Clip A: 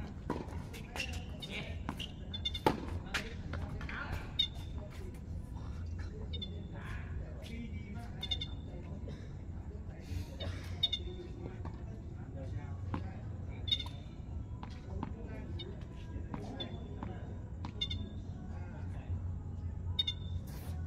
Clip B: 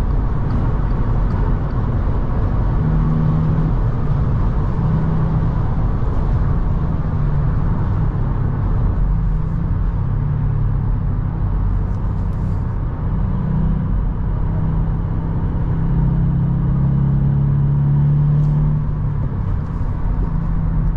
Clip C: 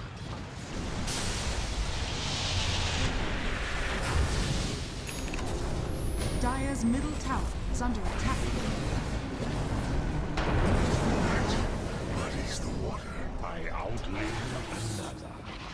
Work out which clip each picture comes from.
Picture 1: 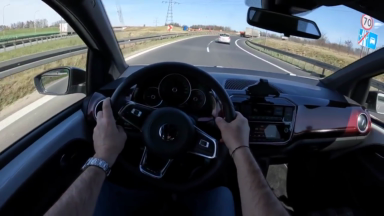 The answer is B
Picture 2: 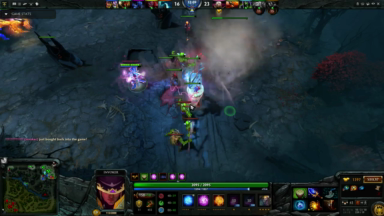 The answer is C